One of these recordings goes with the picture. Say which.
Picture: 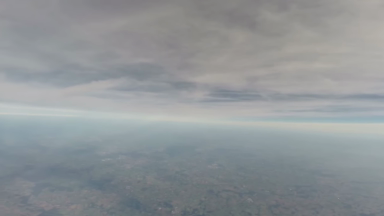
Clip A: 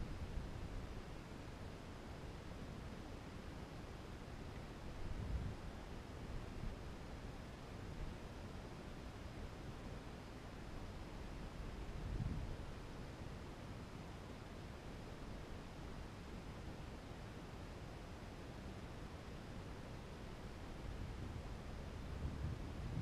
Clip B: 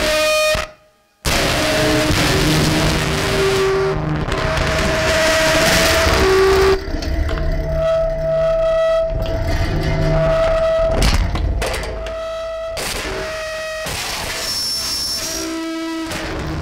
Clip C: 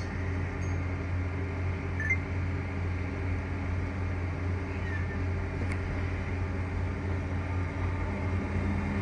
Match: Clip A